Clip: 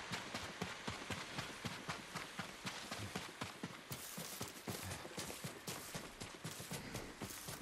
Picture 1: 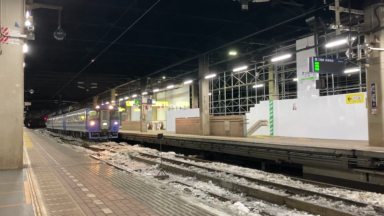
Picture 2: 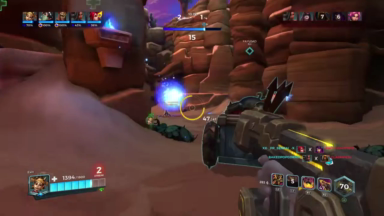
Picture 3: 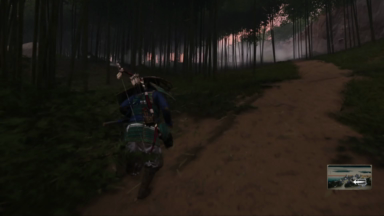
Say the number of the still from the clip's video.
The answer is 3